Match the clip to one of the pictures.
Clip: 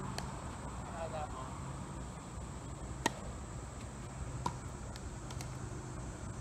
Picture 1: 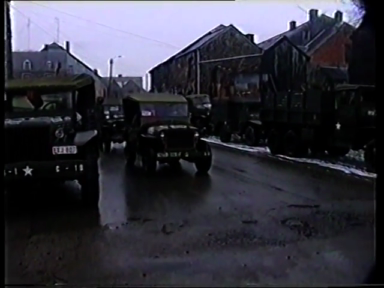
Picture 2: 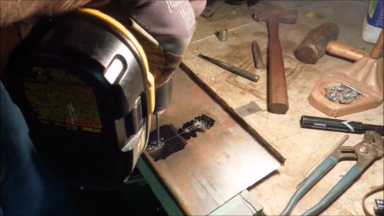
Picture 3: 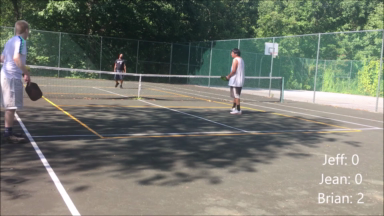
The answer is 3